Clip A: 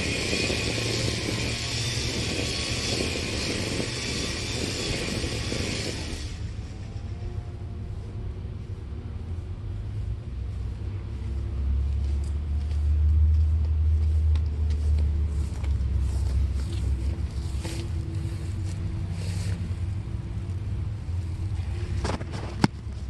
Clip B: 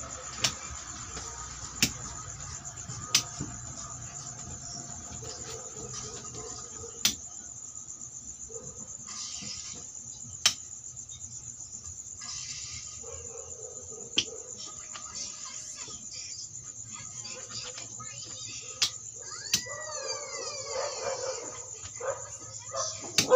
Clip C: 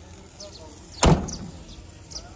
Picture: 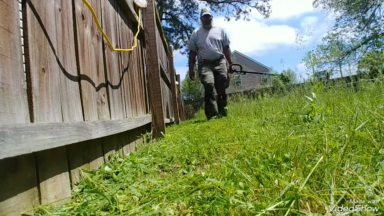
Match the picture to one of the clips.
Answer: A